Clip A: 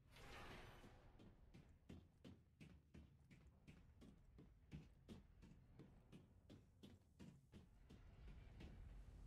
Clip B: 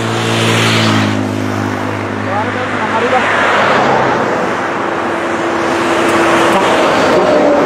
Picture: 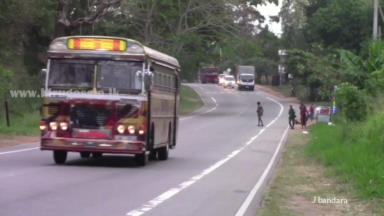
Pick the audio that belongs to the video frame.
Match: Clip B